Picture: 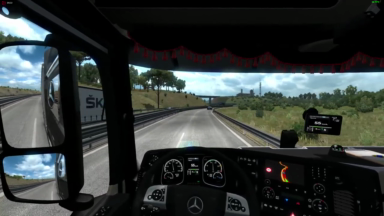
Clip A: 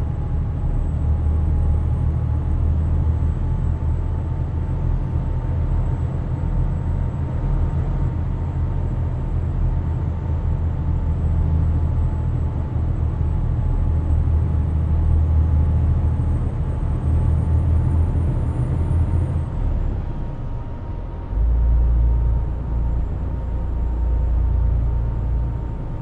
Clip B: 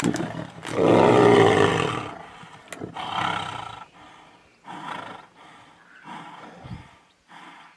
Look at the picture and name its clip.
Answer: A